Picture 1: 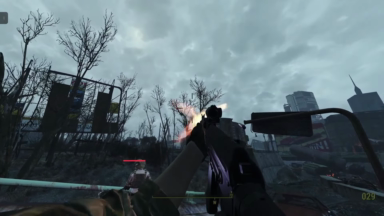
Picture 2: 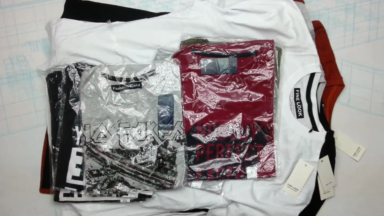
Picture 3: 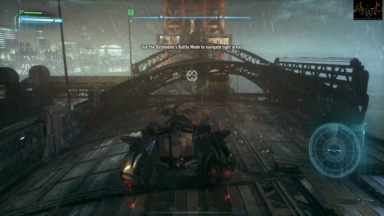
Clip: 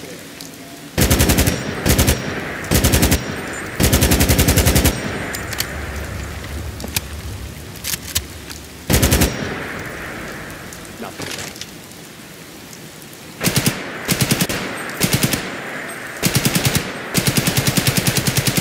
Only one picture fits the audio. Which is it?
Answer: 1